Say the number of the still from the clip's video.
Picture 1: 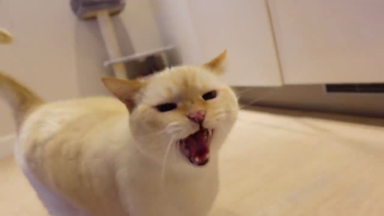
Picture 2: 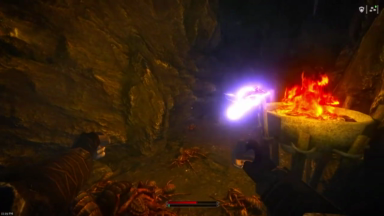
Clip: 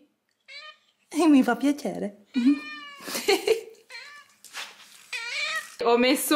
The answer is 1